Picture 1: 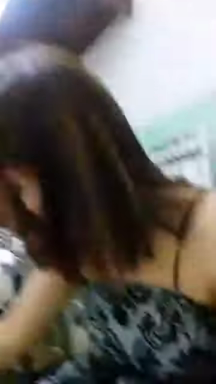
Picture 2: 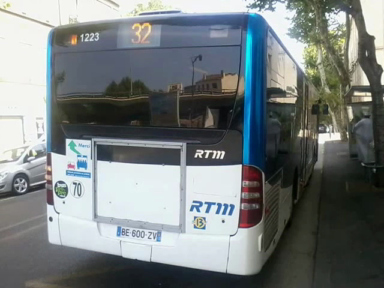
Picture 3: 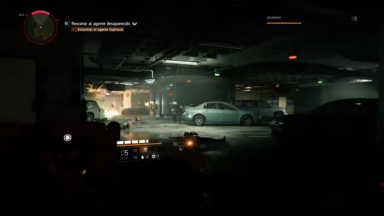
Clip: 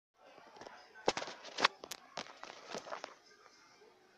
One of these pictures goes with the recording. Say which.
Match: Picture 1